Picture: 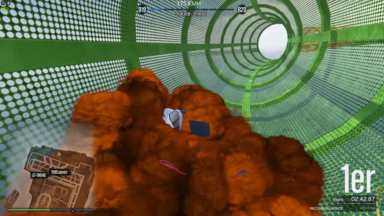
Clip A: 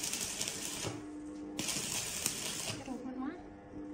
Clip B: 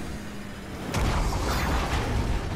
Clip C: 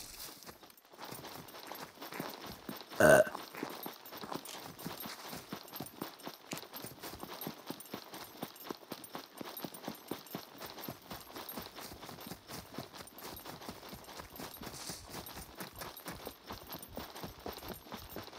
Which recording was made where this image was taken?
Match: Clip B